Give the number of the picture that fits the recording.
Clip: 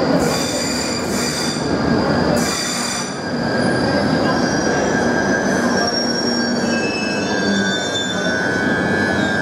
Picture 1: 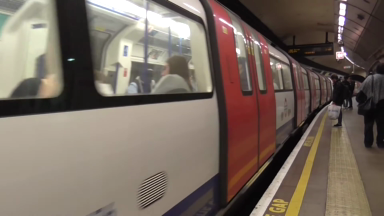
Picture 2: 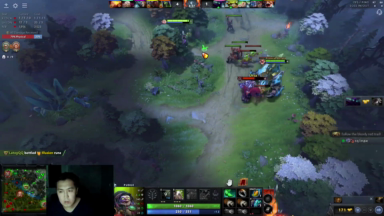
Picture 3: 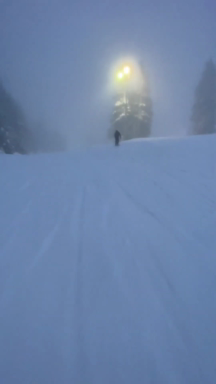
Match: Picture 1